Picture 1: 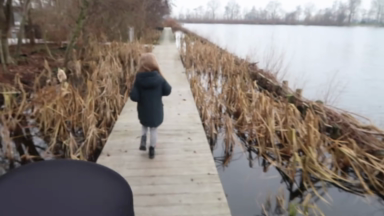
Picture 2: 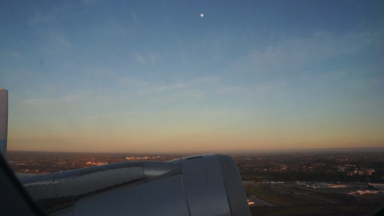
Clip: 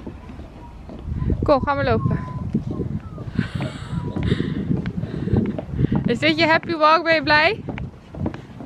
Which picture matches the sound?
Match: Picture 1